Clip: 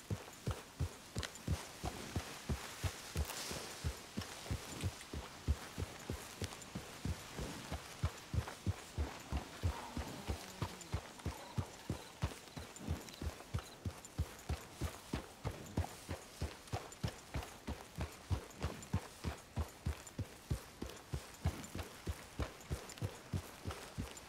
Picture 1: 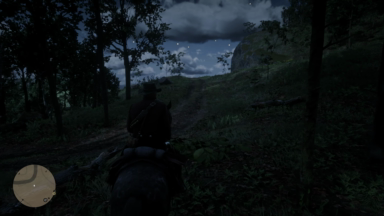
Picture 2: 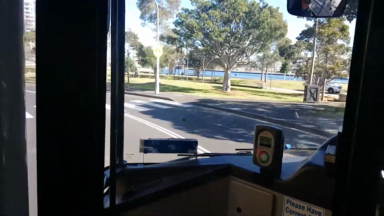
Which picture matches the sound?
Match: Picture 1